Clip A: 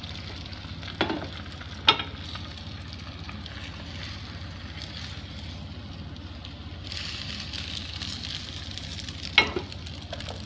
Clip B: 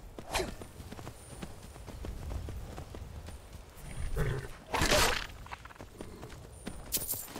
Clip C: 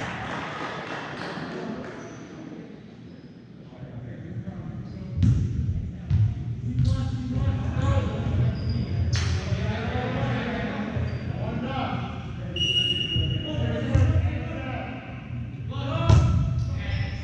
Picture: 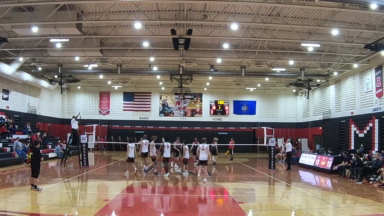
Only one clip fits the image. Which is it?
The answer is C